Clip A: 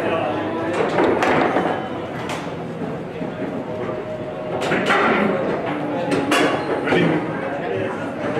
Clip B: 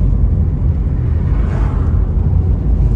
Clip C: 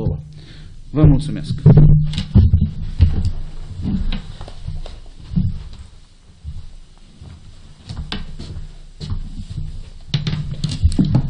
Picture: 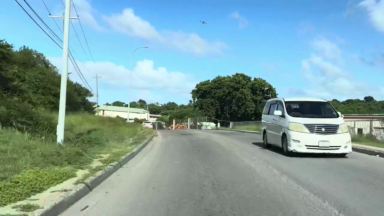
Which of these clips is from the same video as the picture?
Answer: B